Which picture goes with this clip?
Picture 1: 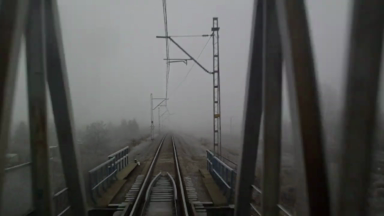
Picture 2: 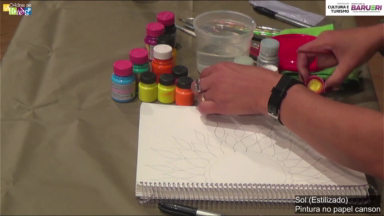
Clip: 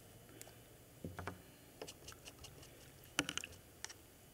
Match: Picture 2